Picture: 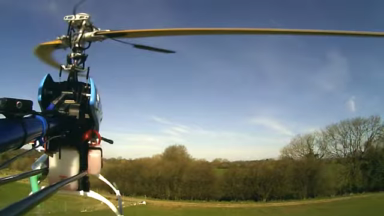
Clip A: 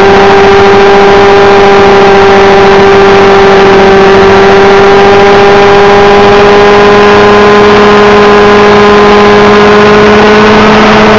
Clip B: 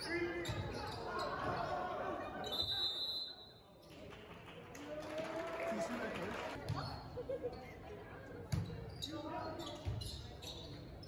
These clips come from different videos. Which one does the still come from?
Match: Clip A